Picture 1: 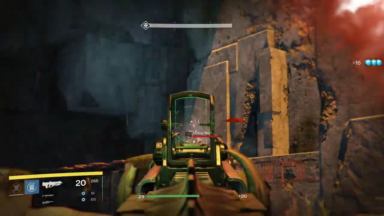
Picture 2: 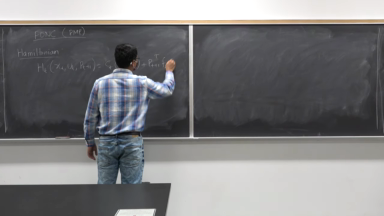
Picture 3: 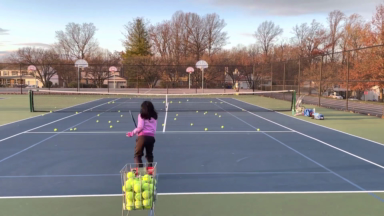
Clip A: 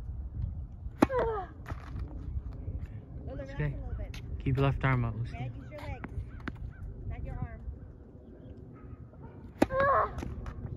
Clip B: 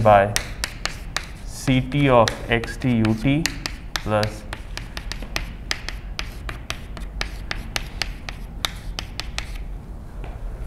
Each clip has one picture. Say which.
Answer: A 3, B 2